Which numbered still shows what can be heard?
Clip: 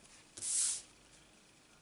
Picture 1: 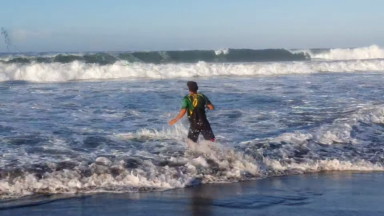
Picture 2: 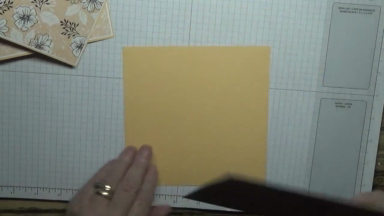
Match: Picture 2